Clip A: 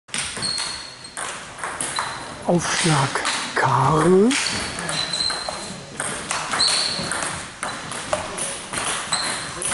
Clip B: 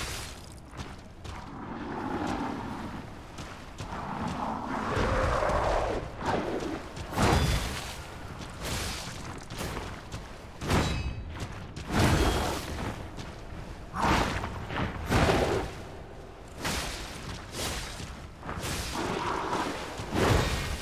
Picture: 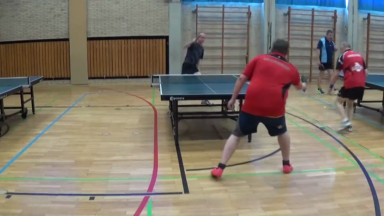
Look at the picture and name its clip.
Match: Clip A